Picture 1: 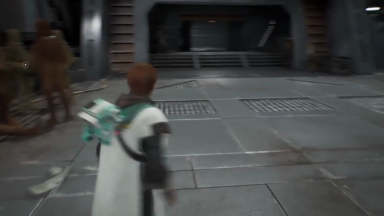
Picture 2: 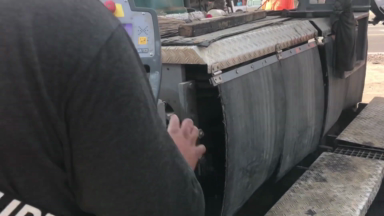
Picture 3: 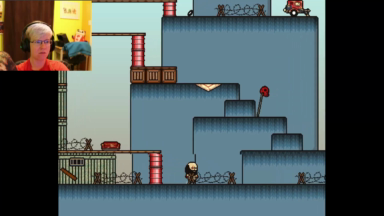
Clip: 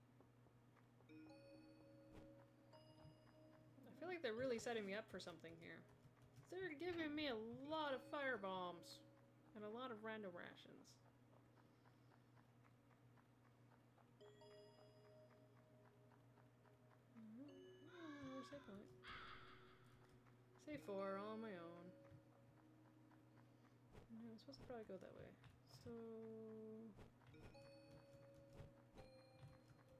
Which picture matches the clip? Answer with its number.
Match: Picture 3